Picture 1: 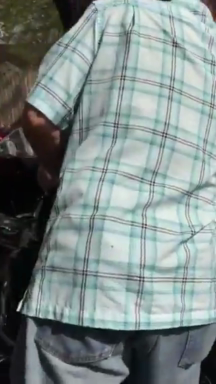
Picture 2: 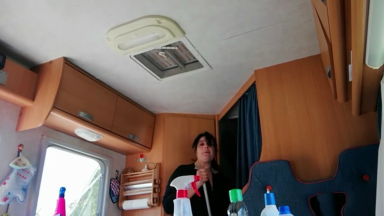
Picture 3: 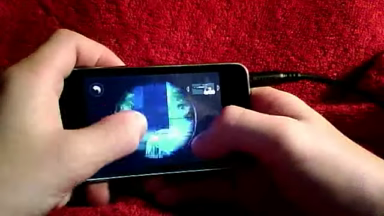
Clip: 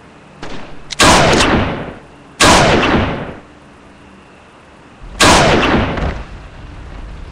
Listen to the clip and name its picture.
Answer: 3